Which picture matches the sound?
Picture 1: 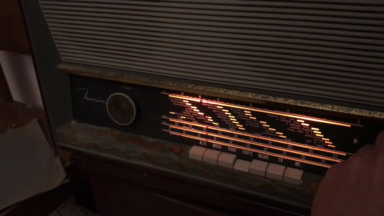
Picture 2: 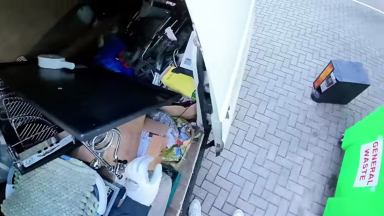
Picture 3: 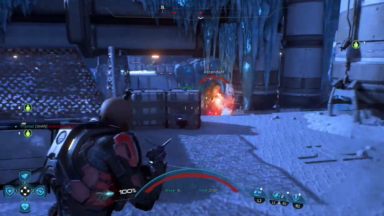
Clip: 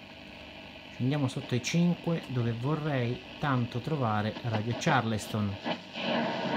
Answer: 1